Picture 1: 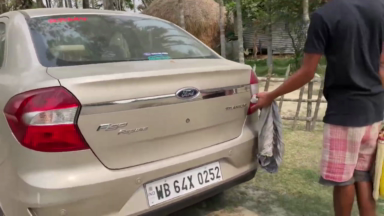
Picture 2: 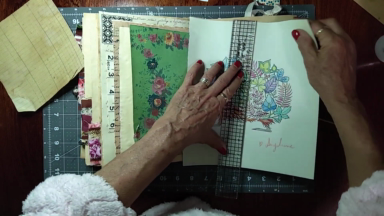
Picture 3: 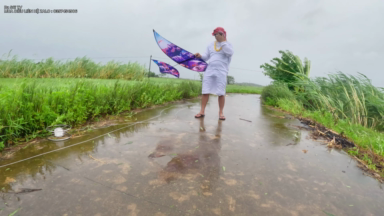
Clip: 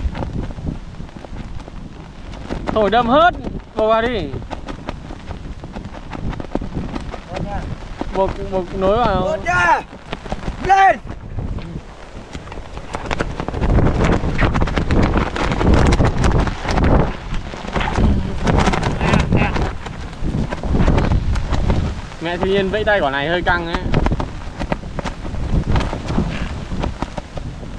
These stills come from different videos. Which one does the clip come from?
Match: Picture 3